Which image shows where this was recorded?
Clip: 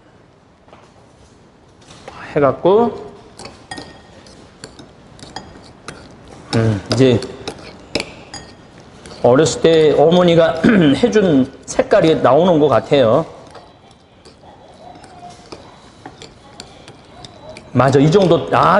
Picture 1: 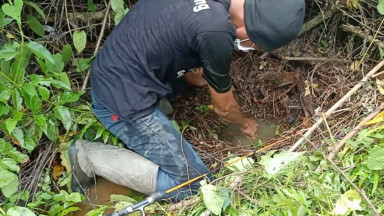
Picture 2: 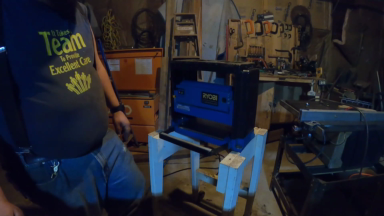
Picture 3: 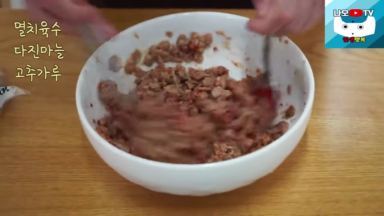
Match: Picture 3